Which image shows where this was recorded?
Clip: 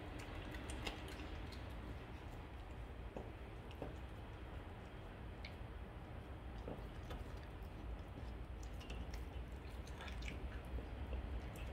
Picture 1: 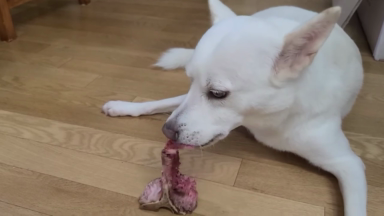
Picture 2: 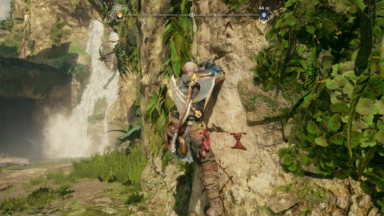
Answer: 1